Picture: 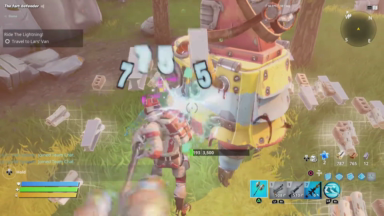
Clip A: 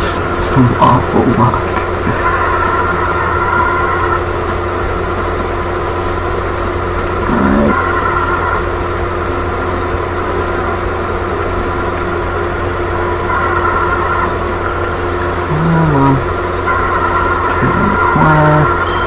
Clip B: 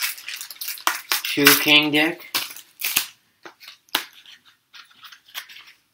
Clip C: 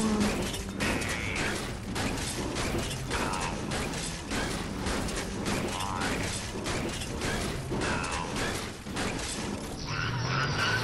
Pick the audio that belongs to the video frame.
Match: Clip C